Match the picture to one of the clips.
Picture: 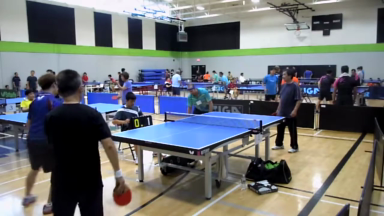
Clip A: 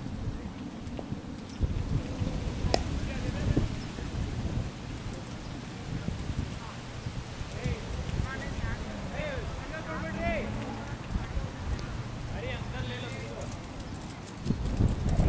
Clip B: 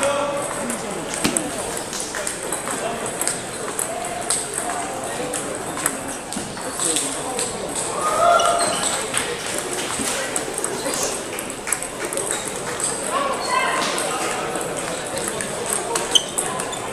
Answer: B